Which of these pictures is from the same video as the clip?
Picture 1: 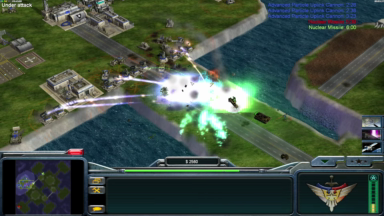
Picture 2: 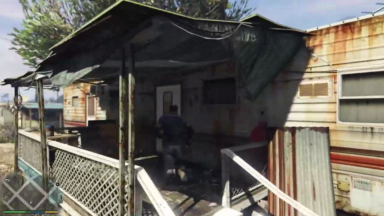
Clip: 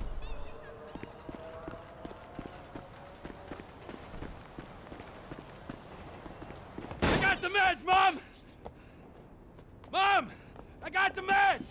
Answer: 2